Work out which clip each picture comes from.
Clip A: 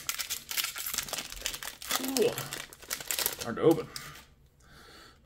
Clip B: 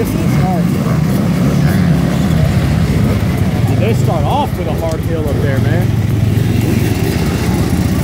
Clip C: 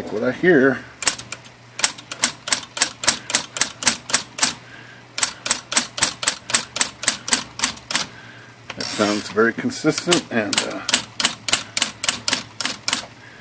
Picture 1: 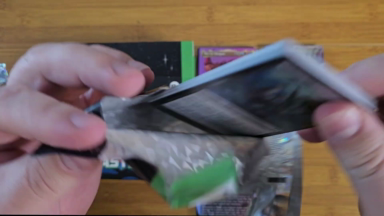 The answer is A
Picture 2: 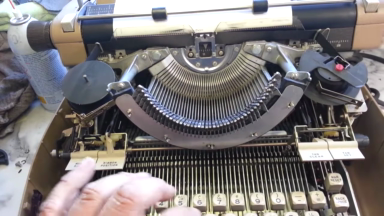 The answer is C